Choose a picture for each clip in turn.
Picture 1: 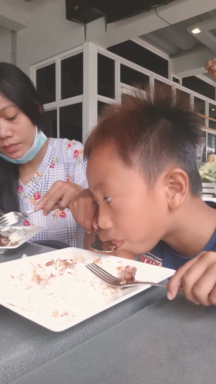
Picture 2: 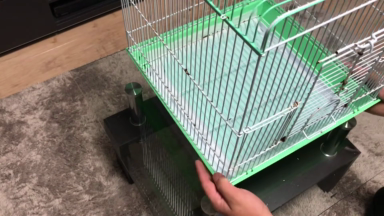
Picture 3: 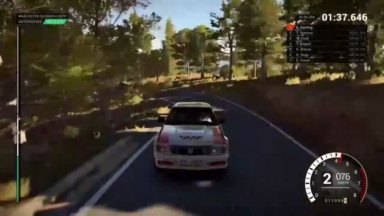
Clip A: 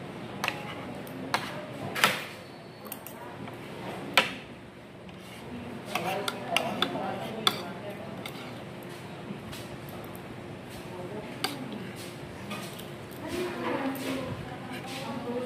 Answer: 1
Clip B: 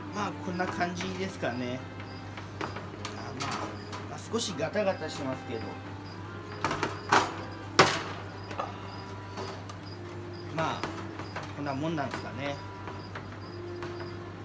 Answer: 2